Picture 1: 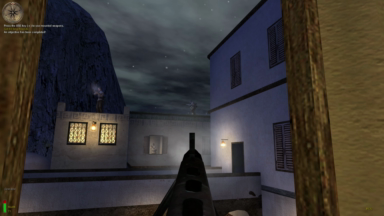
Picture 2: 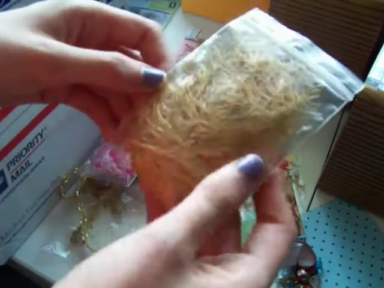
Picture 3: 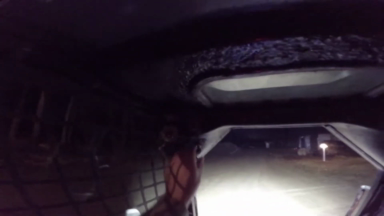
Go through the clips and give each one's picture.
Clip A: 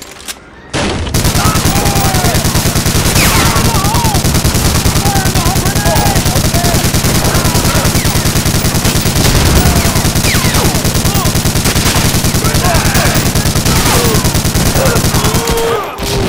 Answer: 1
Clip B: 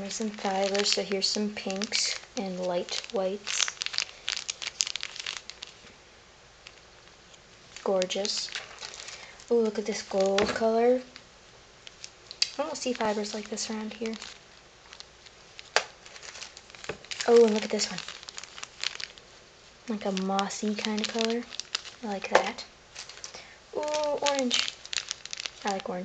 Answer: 2